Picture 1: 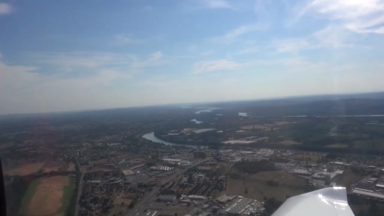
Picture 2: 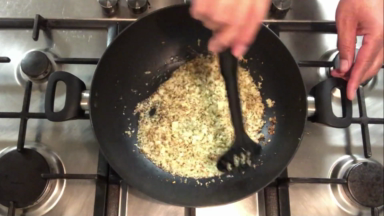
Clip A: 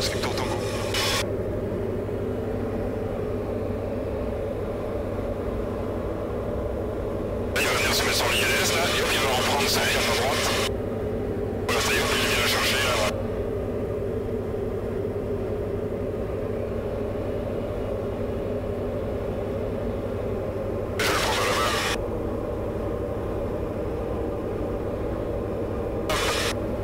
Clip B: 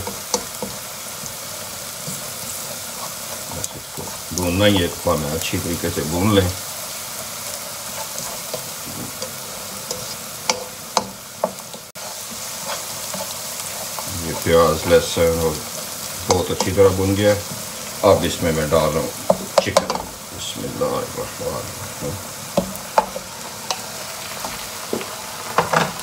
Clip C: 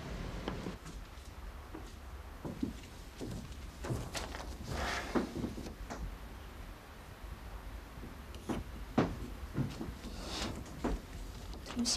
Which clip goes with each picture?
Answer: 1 A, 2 B